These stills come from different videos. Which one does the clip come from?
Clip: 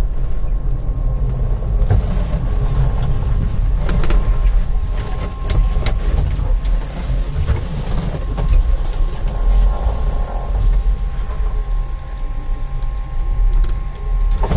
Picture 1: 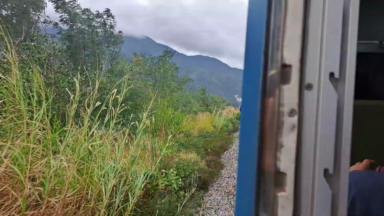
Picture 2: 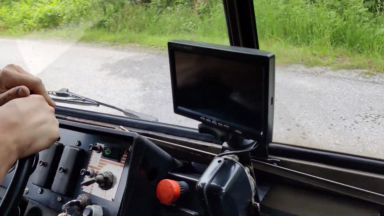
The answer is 2